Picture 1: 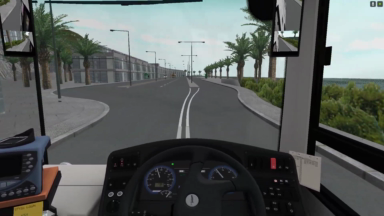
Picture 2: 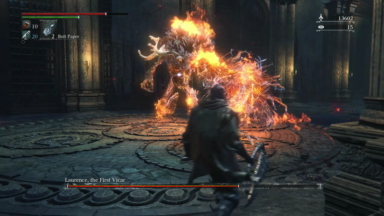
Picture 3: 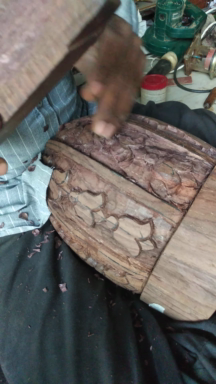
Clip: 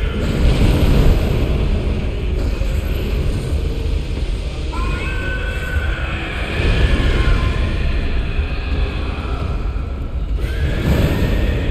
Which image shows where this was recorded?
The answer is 2